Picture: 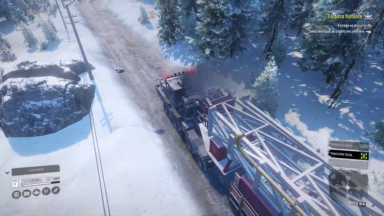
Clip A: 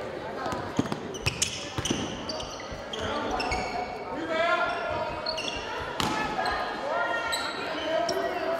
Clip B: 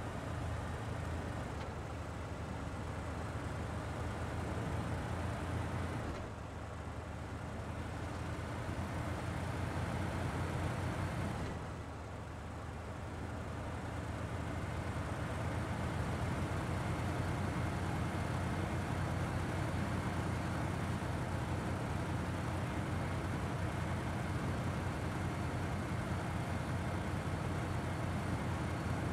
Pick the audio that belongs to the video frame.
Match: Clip B